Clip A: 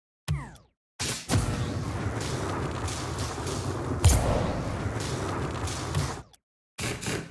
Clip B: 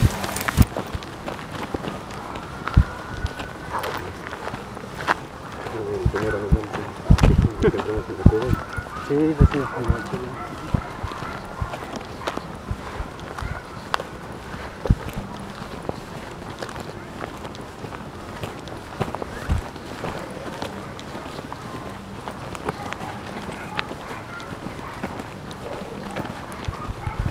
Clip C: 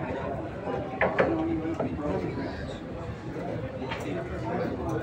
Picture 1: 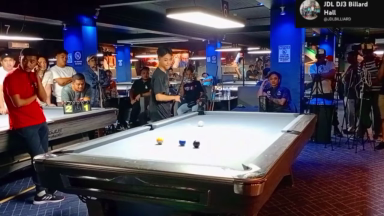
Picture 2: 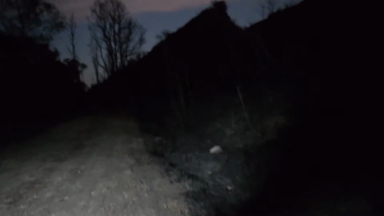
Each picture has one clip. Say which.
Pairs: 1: C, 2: B